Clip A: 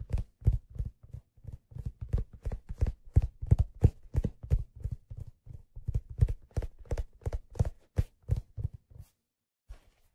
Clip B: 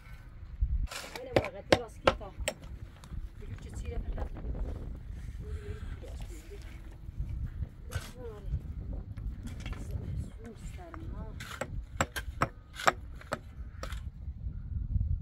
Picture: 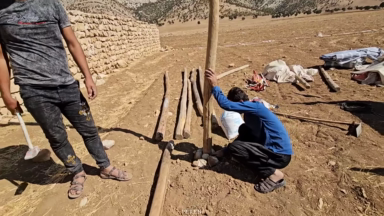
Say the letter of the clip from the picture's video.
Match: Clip B